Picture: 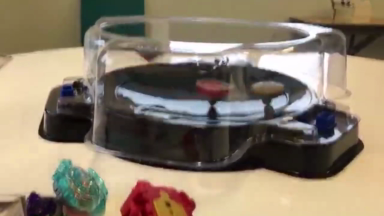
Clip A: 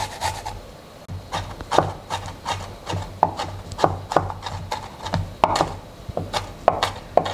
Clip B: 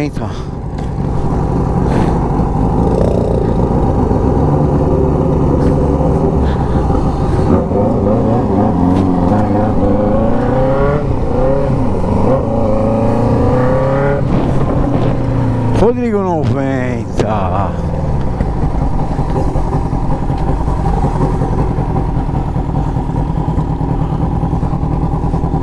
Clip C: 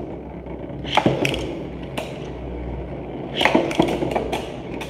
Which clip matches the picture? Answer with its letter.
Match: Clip C